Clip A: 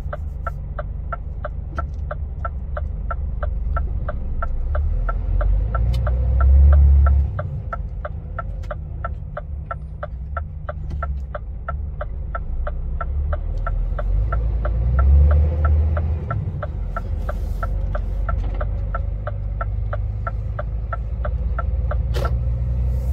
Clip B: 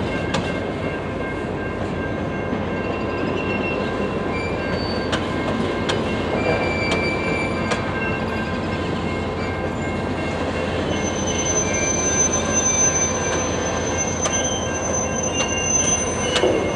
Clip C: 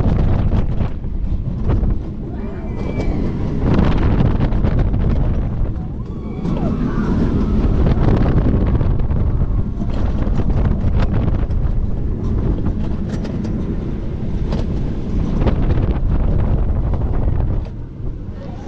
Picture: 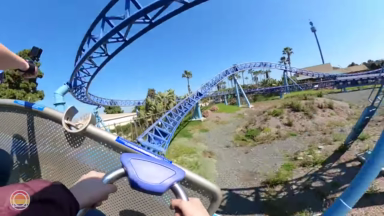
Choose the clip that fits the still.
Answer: C